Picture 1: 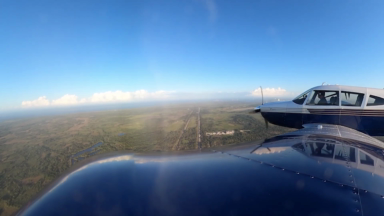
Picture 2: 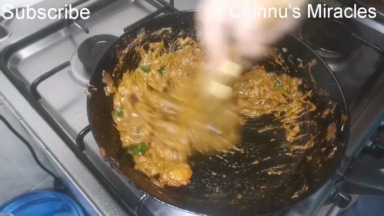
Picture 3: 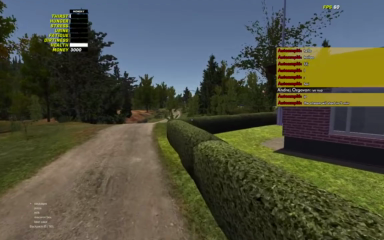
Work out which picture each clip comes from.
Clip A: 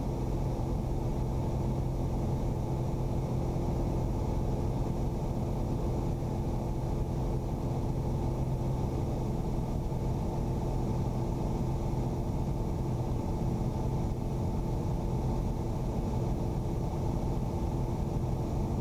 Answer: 1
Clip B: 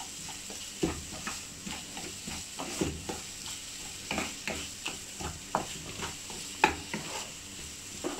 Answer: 2